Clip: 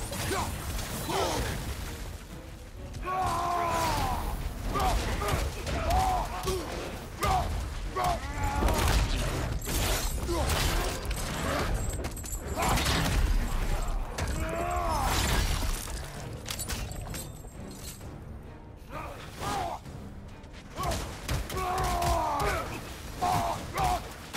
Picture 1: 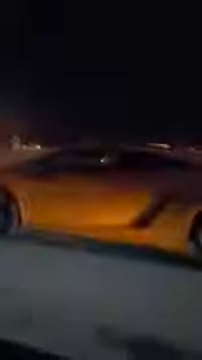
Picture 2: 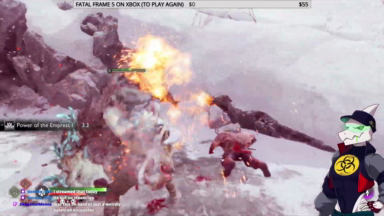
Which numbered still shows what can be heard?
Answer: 2